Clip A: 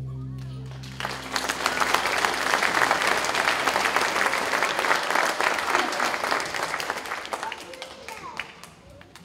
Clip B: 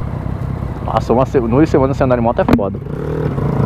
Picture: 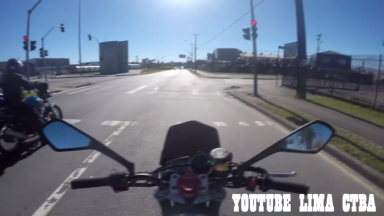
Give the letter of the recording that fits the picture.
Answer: B